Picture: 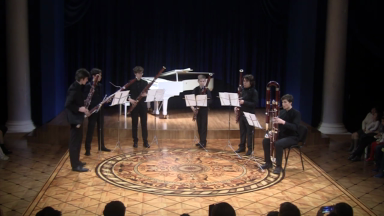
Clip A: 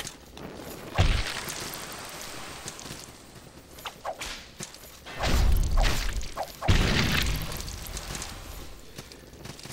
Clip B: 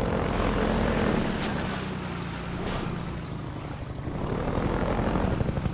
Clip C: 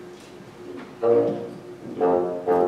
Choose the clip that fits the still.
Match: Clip C